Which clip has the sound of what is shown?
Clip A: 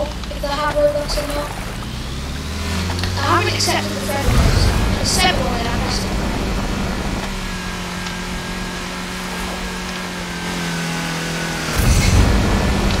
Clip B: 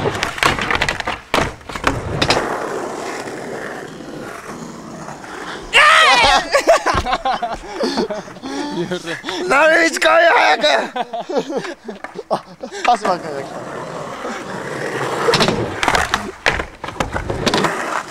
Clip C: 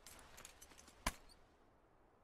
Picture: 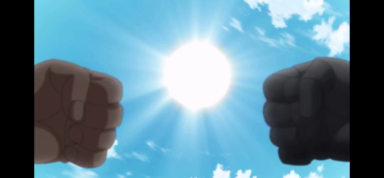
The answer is C